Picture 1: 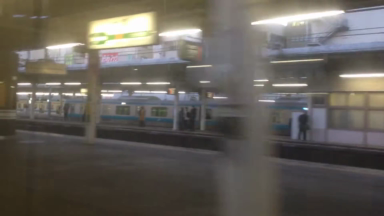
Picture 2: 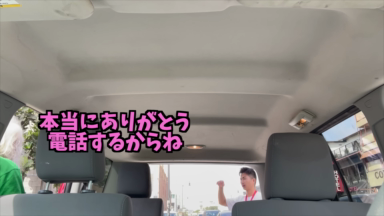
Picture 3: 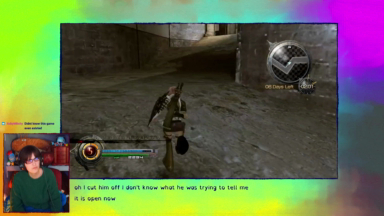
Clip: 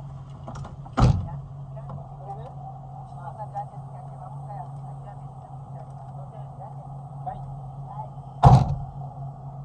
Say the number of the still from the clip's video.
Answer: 2